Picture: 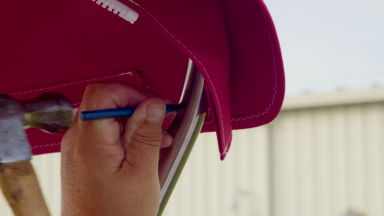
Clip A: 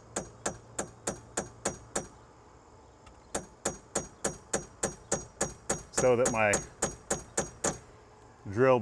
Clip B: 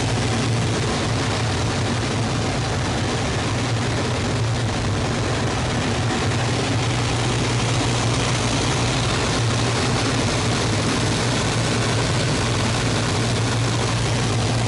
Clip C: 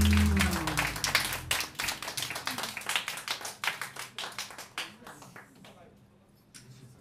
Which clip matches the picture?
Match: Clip A